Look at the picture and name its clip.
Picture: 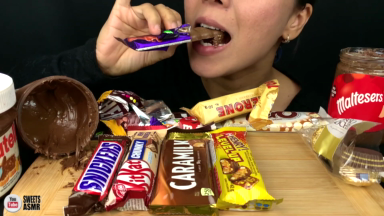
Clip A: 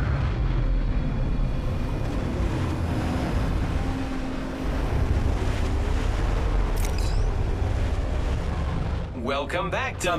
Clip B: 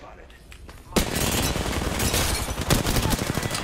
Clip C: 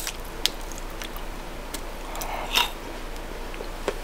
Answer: C